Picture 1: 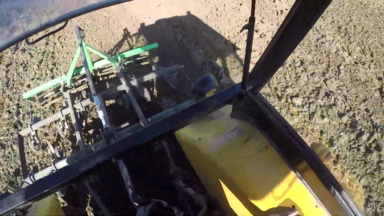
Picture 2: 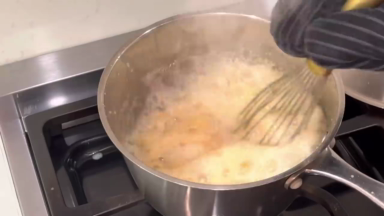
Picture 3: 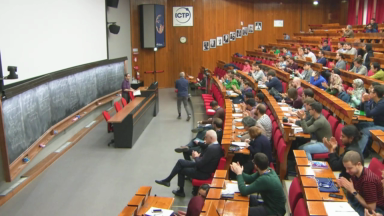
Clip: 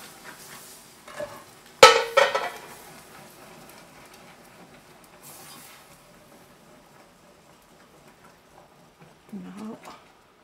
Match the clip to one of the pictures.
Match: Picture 2